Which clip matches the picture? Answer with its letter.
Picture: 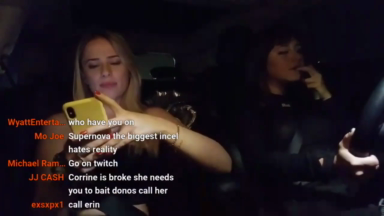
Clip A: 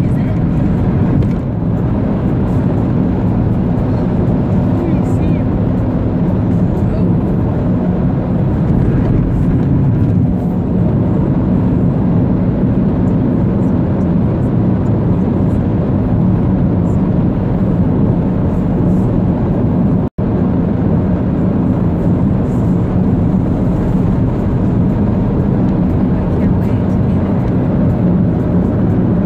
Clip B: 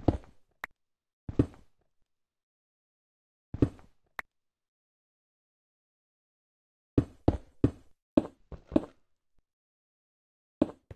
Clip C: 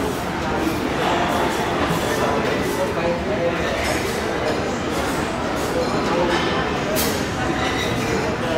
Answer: A